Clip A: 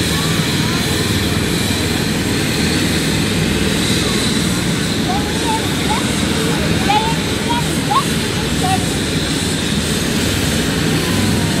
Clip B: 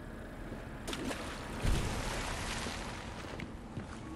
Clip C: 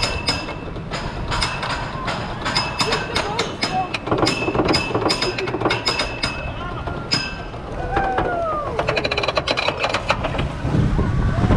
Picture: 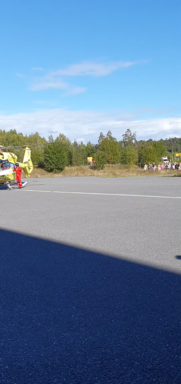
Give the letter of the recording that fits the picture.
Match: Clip A